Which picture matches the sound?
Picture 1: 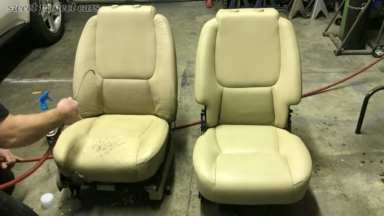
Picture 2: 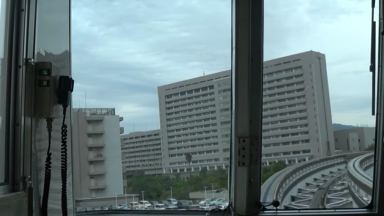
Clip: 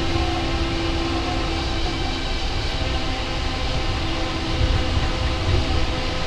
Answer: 2